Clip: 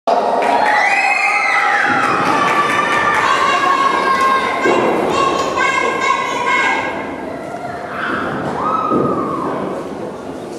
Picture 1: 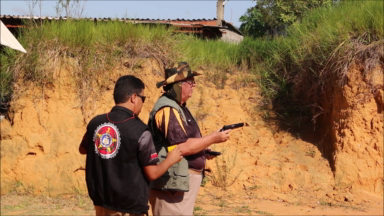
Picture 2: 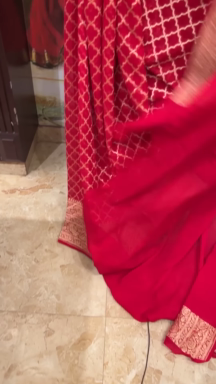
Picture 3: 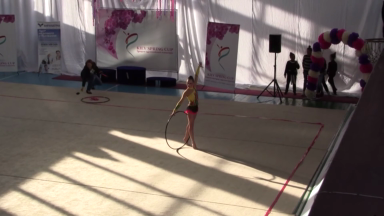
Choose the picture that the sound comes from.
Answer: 3